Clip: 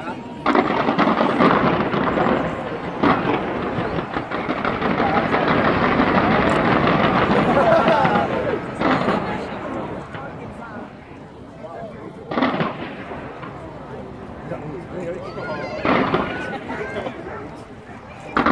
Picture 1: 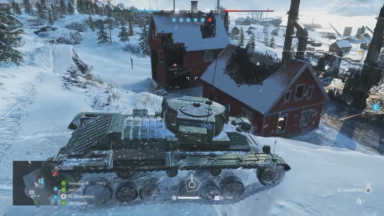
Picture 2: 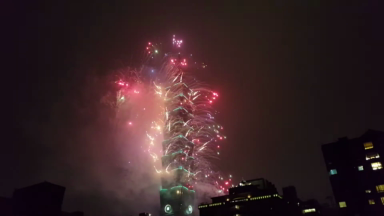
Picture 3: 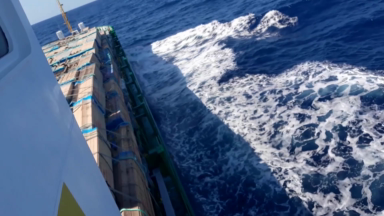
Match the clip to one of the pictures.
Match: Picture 2